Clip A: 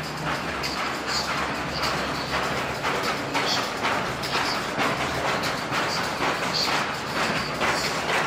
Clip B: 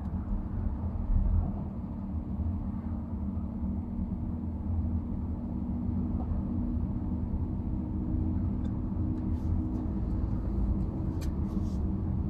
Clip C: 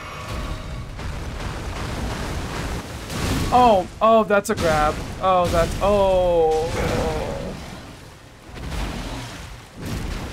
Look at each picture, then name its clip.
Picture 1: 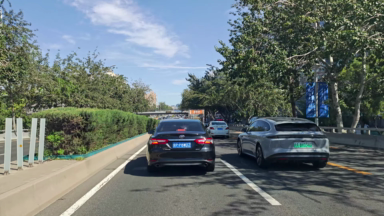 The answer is B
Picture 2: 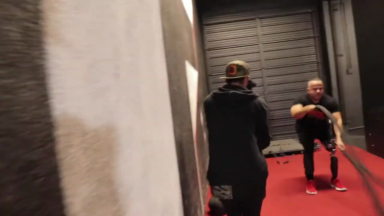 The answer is A